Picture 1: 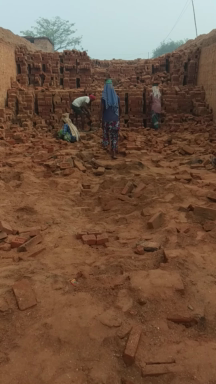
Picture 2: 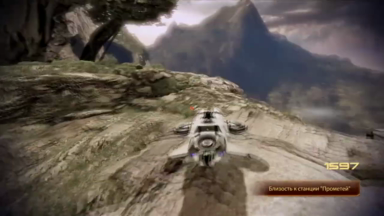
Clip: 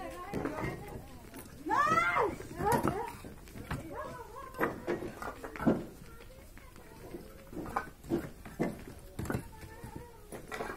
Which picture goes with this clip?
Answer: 1